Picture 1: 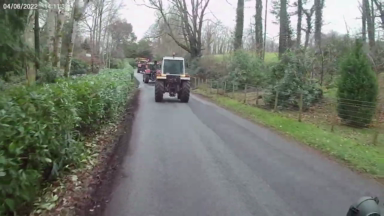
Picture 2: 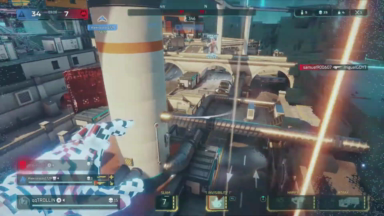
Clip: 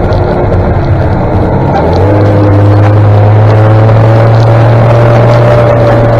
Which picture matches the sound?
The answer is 1